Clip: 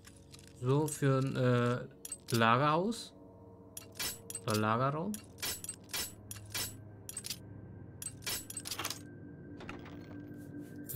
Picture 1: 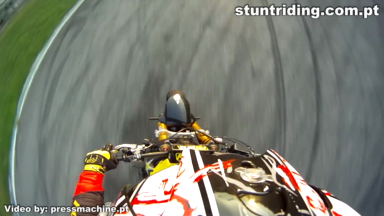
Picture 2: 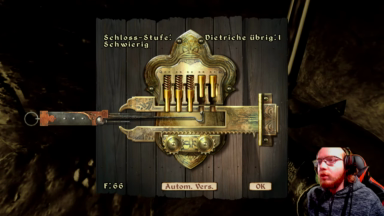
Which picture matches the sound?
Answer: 2